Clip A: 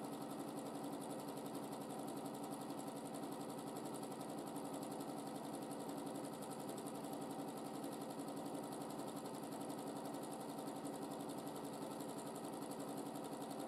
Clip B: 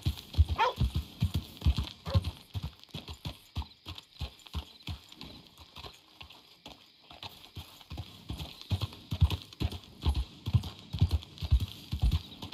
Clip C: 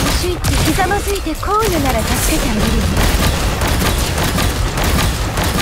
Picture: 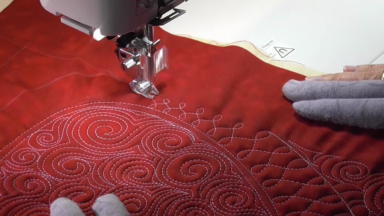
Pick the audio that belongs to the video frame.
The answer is A